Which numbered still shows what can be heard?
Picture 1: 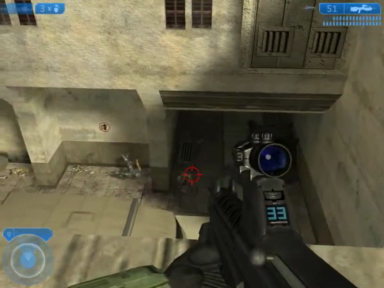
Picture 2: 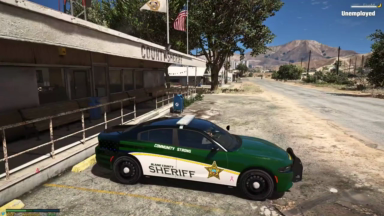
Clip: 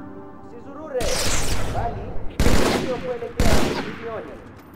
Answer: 1